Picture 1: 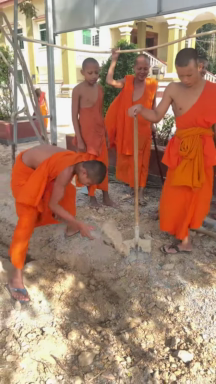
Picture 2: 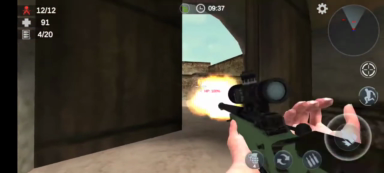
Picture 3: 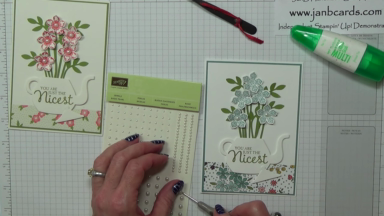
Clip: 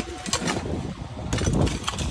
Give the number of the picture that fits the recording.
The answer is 1